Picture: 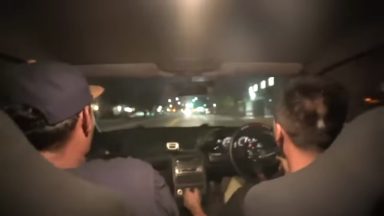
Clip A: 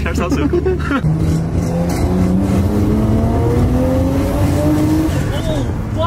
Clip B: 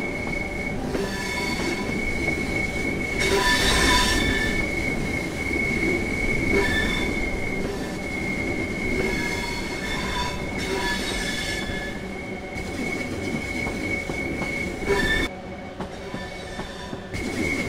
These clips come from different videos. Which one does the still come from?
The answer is A